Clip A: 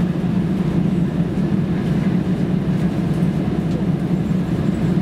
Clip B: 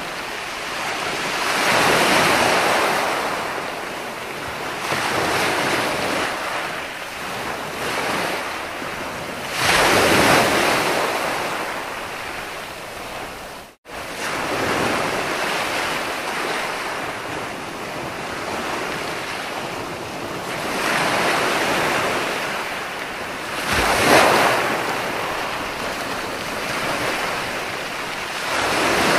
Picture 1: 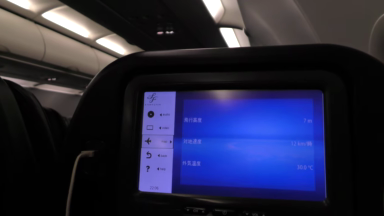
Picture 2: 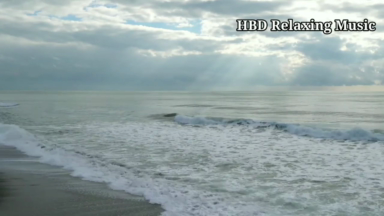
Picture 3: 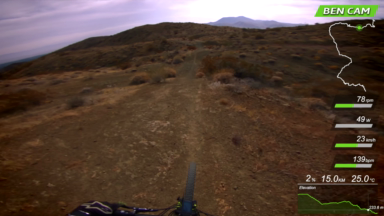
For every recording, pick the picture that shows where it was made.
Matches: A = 1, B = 2